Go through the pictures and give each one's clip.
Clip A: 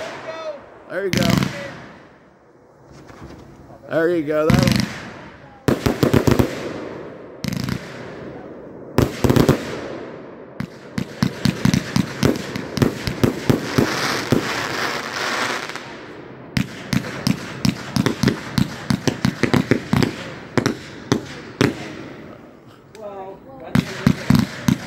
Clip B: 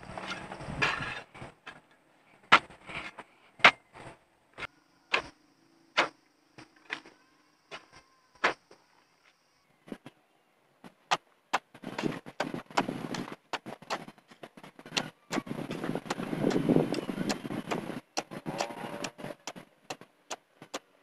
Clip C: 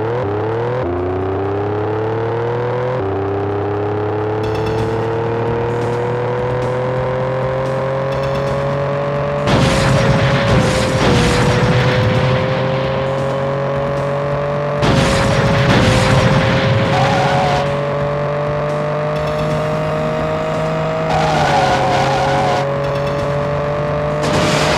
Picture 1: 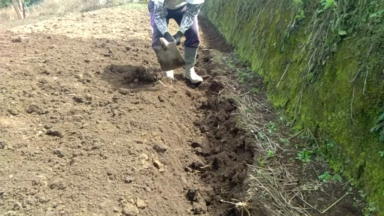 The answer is B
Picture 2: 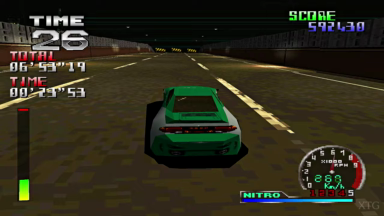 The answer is C